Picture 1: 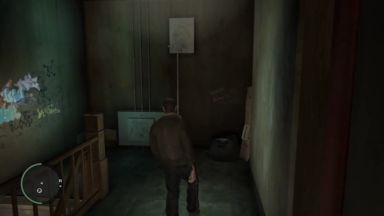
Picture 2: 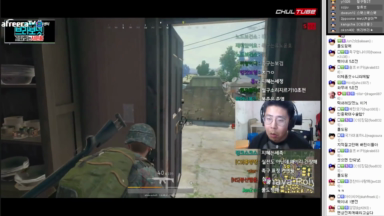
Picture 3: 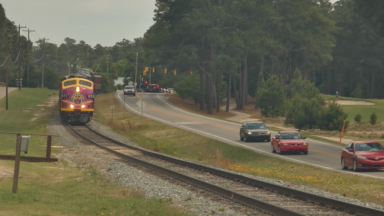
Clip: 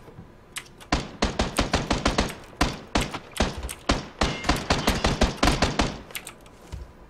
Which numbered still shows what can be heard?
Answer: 2